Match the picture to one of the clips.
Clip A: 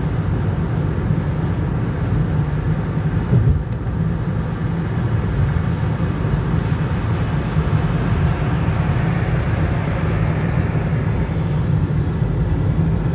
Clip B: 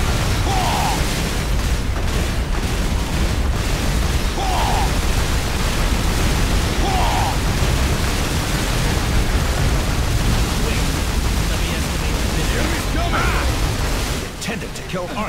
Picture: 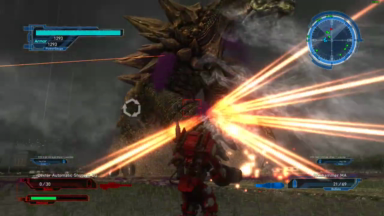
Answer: B